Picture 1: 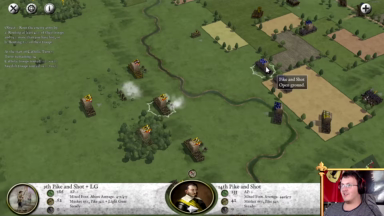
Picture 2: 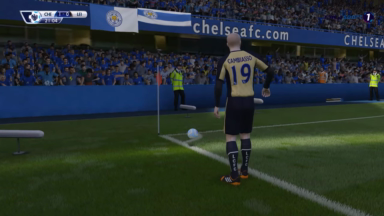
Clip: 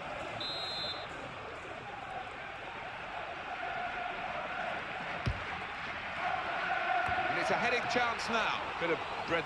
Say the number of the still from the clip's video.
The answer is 2